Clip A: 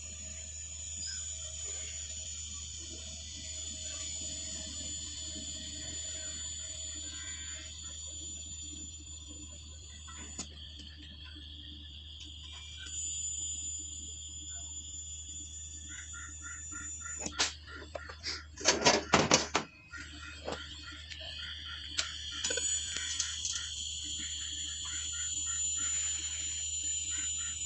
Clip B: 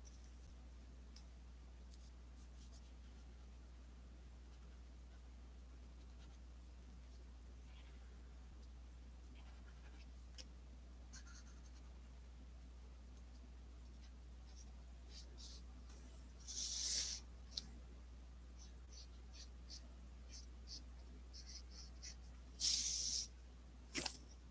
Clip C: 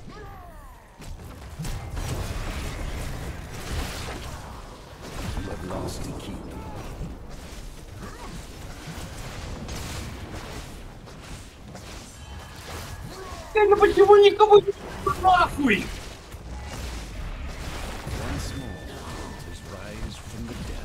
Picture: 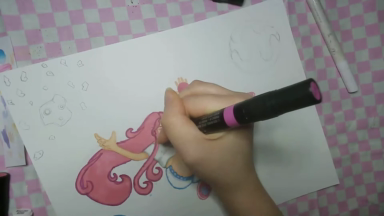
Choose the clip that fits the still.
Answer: B